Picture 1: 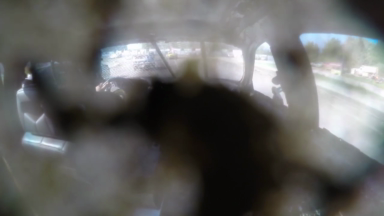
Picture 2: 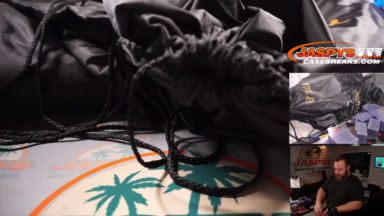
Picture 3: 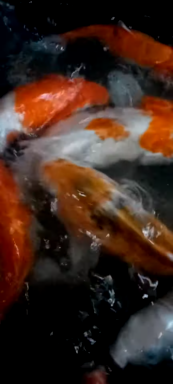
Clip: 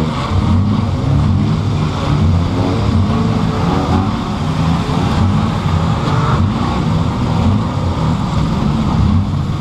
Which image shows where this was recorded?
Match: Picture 1